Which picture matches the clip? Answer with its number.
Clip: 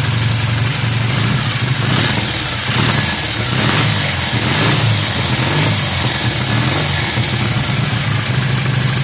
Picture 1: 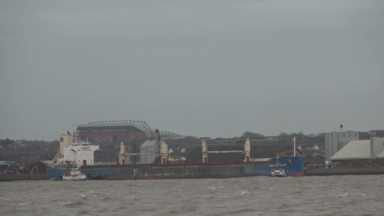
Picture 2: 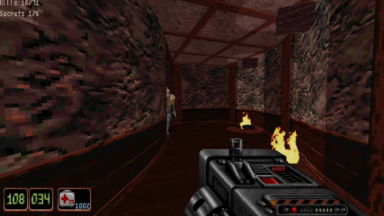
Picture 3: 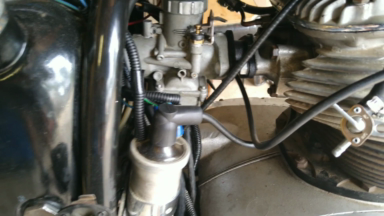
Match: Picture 3